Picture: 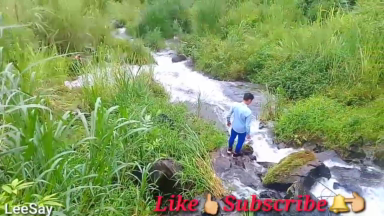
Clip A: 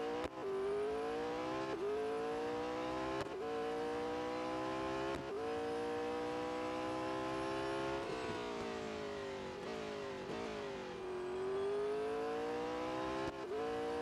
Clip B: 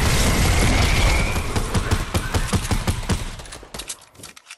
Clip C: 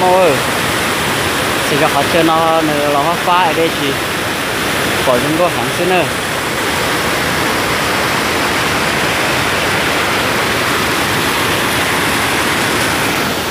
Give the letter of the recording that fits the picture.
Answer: C